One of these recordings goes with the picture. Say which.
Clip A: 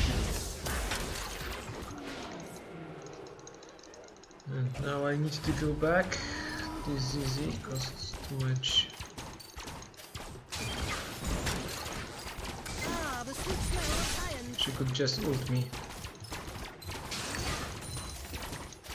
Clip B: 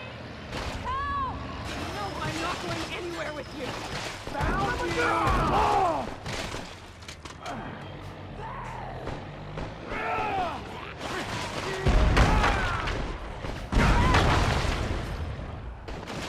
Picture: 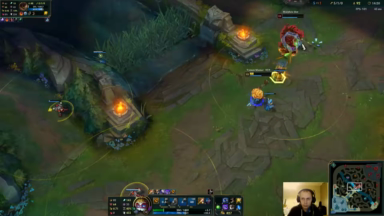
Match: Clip A